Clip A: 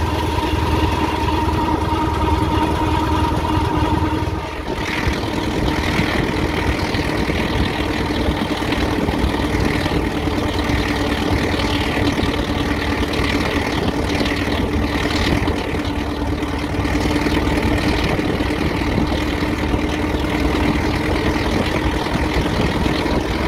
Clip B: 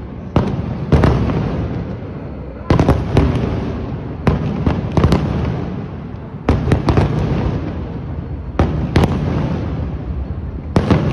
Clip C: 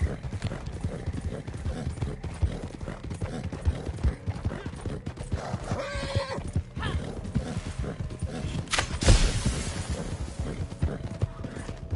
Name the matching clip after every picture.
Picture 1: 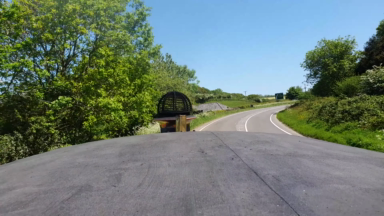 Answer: A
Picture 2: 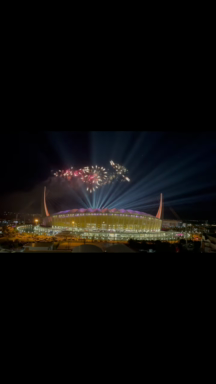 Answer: B